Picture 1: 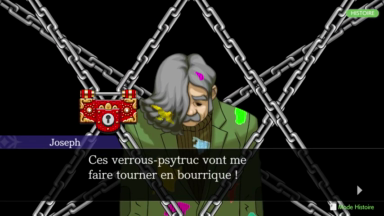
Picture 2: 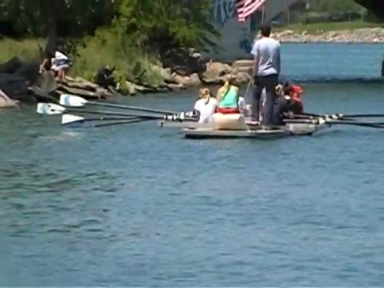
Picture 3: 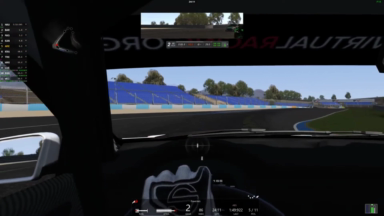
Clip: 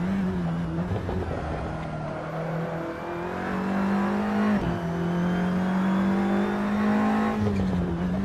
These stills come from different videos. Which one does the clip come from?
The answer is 3